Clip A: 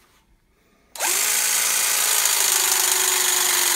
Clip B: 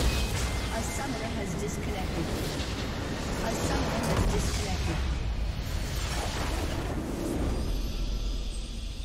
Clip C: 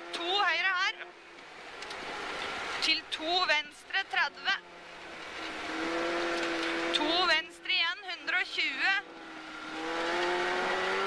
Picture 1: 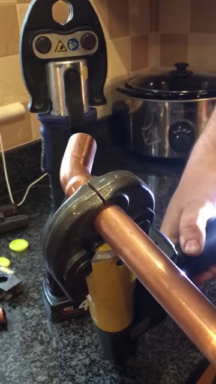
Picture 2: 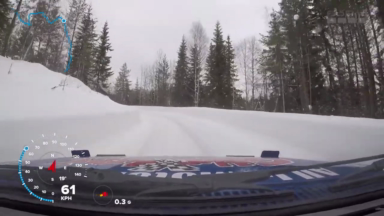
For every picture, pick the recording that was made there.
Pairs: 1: A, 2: C